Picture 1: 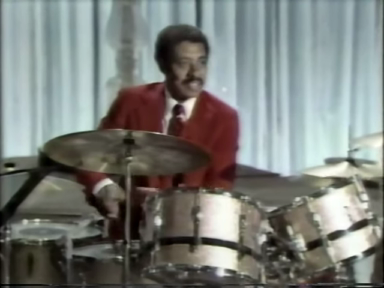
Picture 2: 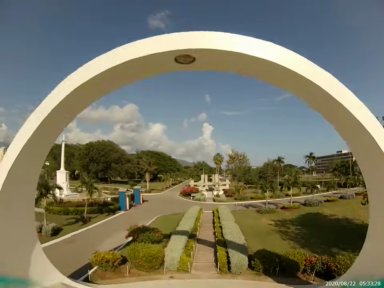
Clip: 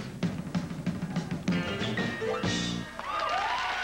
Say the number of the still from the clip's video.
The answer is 1